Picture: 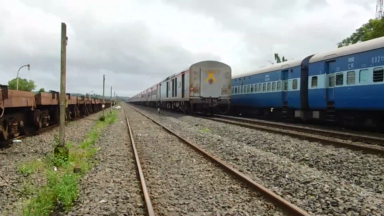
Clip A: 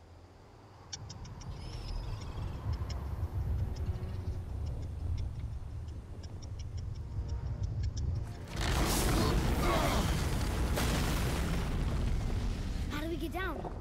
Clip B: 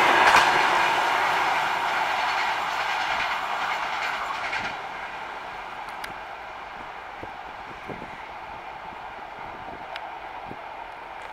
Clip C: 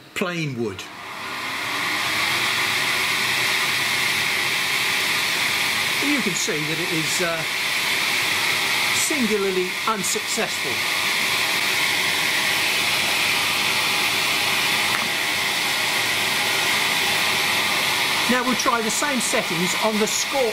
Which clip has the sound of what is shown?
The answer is B